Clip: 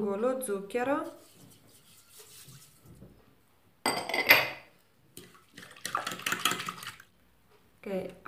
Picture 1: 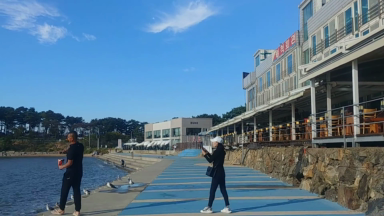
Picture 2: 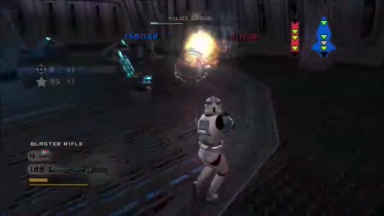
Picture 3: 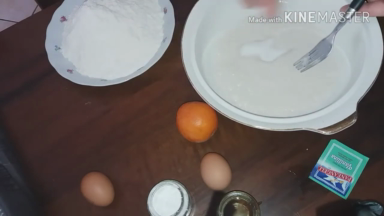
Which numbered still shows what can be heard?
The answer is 3